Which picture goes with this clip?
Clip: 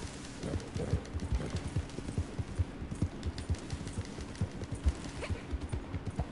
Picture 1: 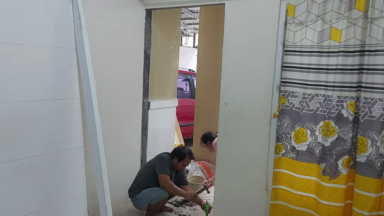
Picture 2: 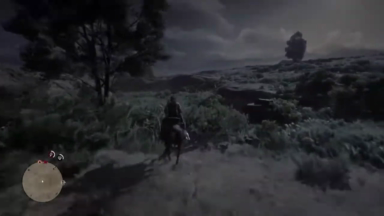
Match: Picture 2